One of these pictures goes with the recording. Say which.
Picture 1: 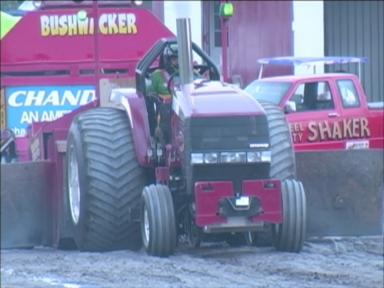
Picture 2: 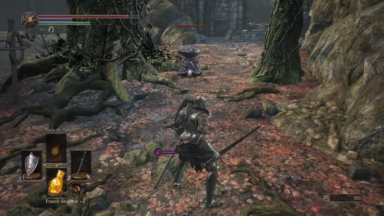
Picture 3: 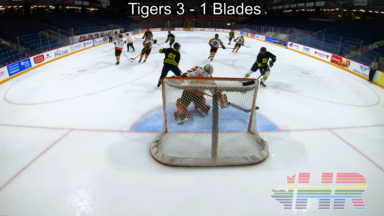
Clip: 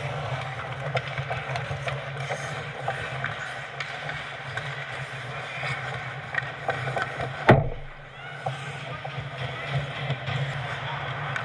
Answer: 3